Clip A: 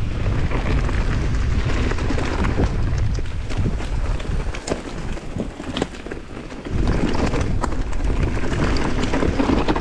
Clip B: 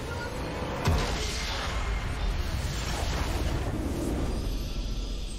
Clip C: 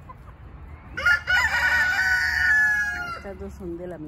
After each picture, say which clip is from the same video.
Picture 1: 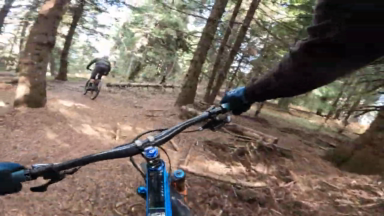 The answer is A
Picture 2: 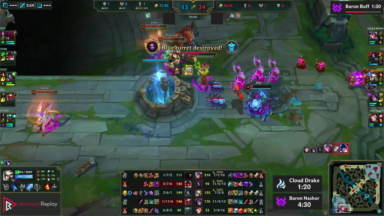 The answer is B